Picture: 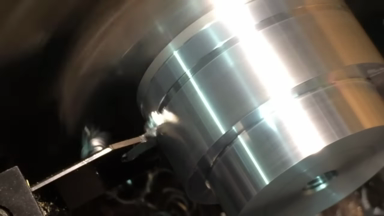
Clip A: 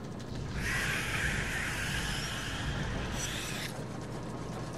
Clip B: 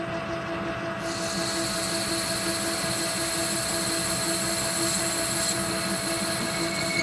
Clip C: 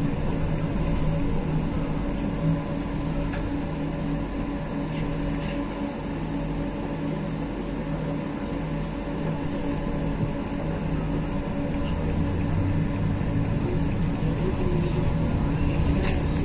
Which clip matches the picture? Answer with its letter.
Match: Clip B